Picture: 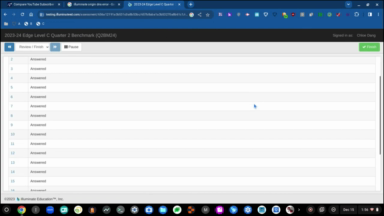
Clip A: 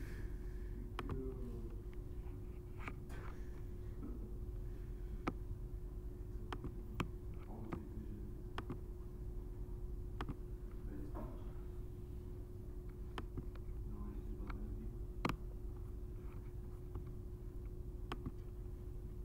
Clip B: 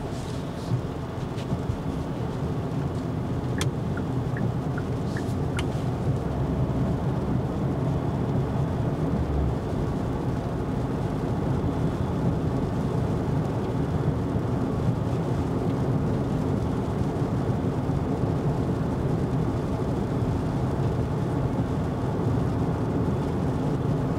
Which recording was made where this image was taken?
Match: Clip A